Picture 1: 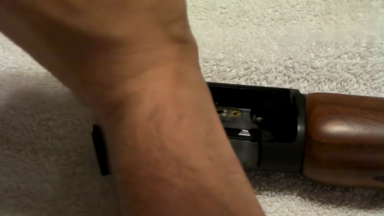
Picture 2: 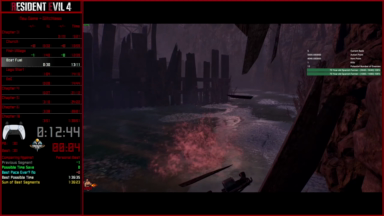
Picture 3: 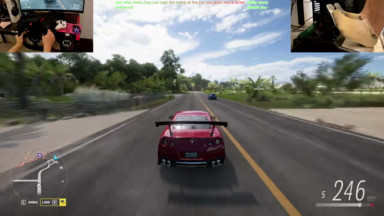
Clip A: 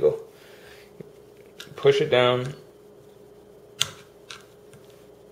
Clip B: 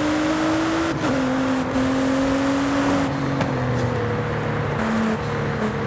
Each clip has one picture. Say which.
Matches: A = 1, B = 3